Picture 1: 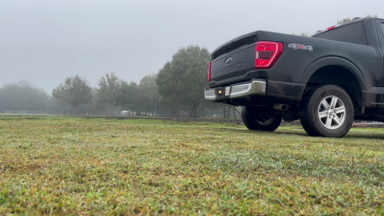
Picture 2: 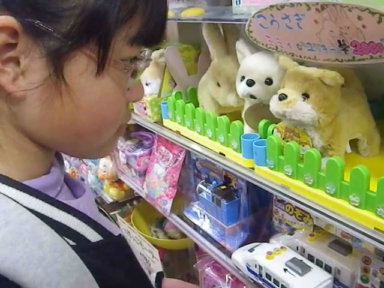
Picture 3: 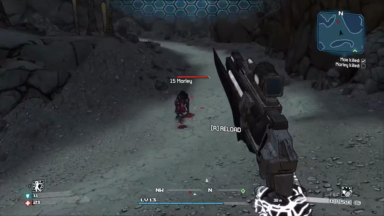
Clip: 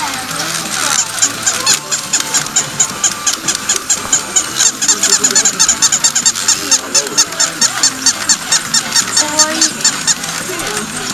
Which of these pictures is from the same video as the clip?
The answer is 2